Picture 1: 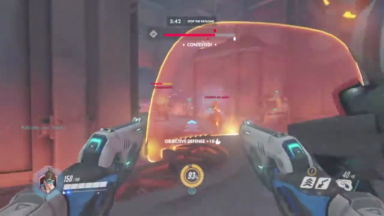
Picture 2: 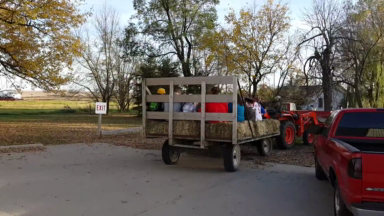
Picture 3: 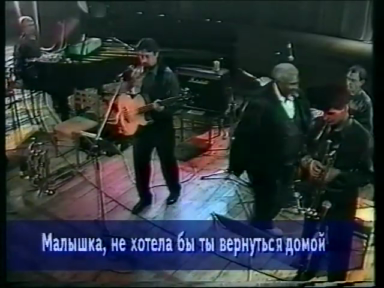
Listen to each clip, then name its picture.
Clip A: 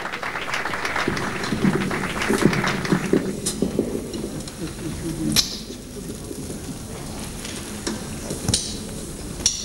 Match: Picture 3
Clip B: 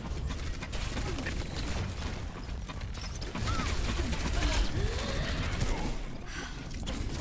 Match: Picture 1